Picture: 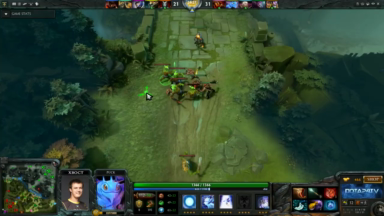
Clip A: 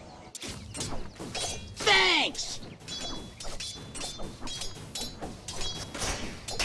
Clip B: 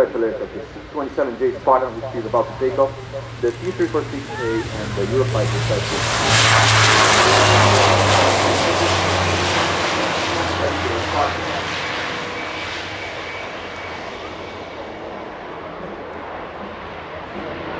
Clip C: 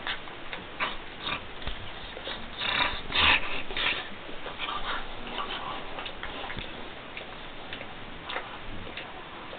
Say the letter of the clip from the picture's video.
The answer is A